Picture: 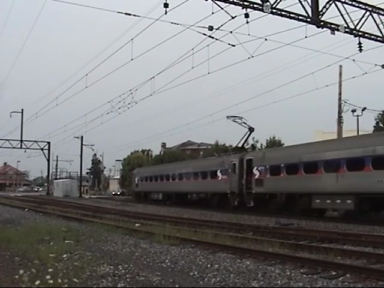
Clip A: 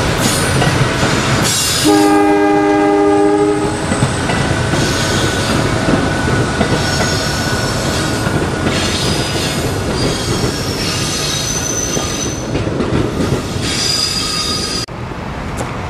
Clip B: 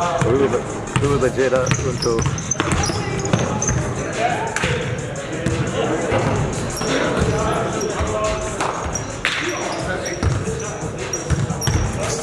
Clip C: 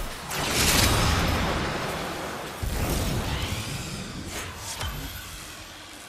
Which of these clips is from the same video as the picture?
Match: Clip A